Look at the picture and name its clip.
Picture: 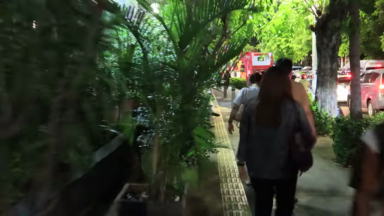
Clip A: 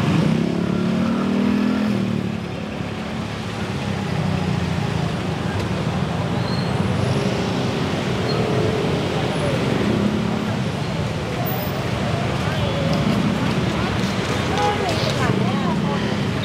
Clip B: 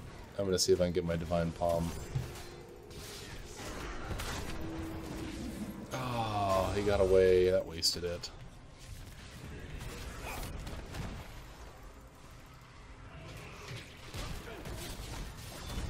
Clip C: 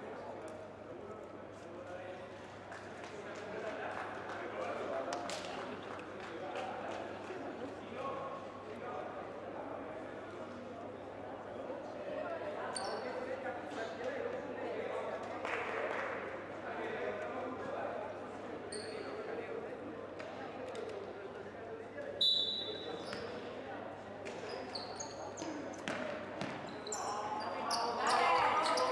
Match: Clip A